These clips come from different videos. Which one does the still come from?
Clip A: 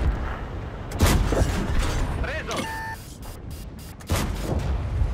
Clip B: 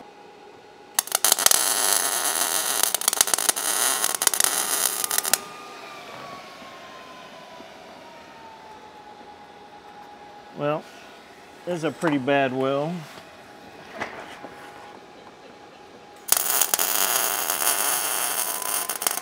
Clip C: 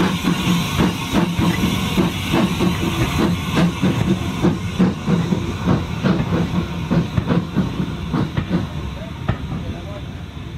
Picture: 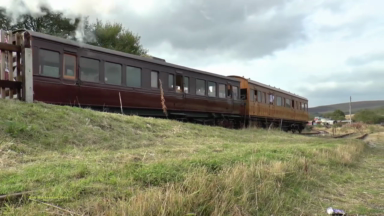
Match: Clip C